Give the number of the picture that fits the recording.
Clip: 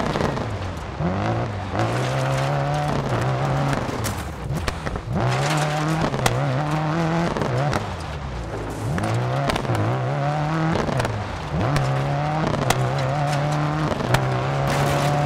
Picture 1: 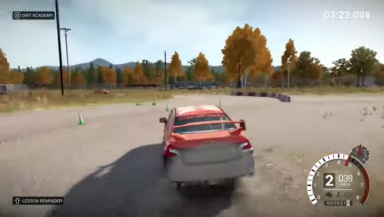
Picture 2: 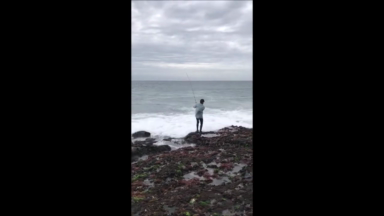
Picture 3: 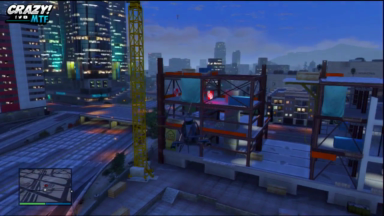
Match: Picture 1